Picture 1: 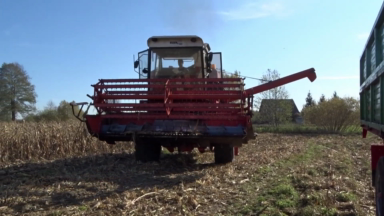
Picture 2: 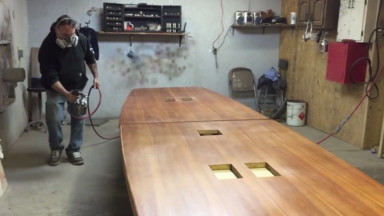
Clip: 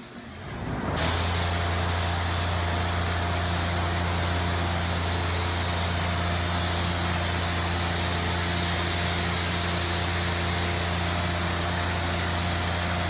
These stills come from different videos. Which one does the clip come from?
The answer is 2